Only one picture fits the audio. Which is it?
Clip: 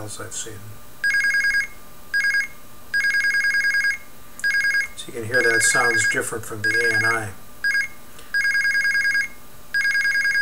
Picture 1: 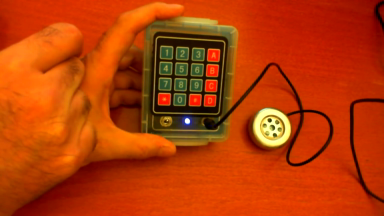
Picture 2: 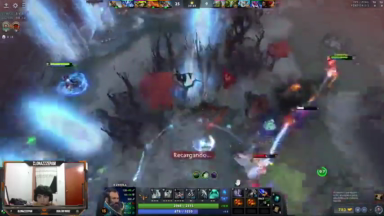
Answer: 1